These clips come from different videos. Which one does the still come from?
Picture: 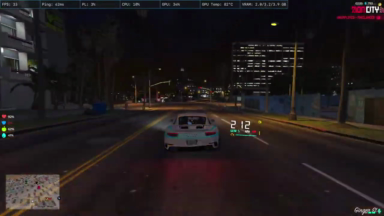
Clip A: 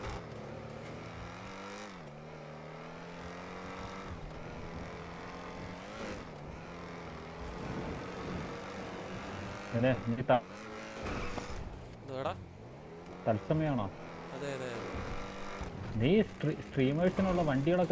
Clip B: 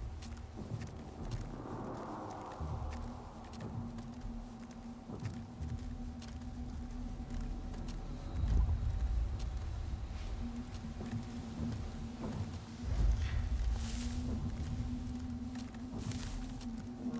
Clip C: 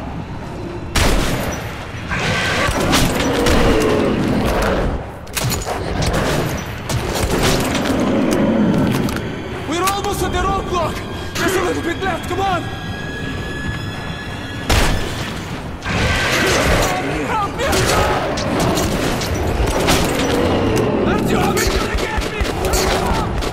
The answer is A